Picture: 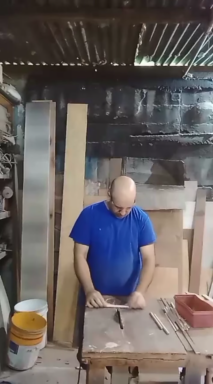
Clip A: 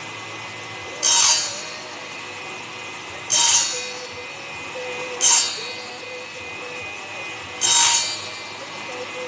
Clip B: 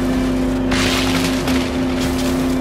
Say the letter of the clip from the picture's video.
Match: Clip A